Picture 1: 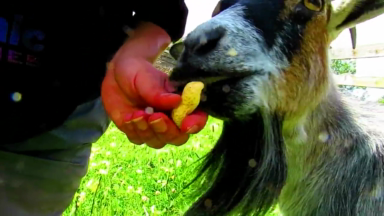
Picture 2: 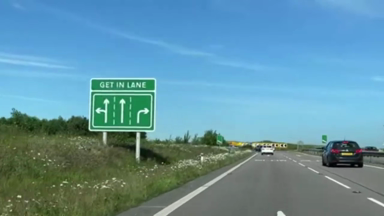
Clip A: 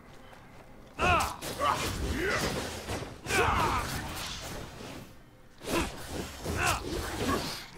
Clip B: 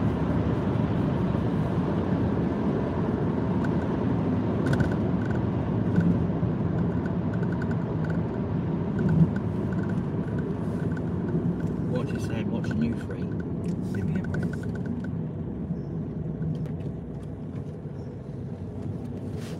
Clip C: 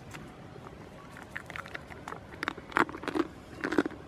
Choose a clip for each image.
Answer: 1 C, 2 B